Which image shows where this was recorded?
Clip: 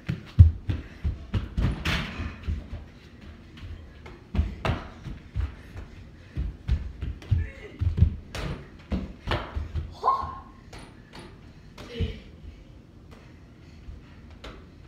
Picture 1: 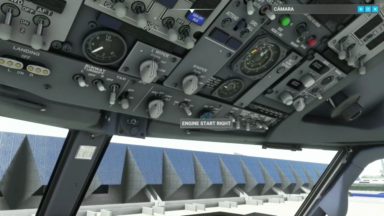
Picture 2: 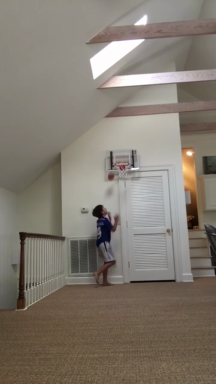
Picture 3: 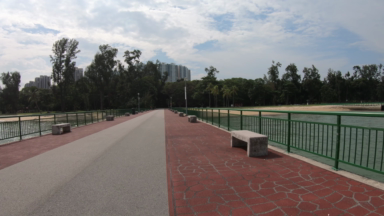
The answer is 2